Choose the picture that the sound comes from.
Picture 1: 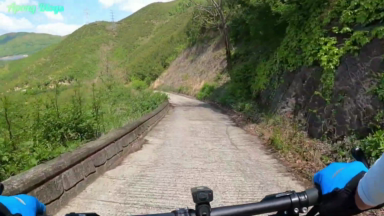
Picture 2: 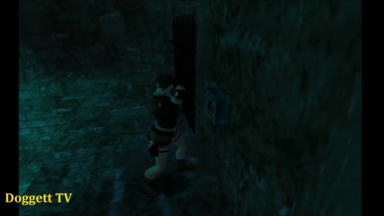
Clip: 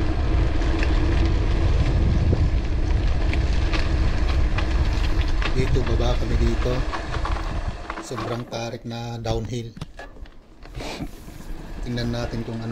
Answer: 1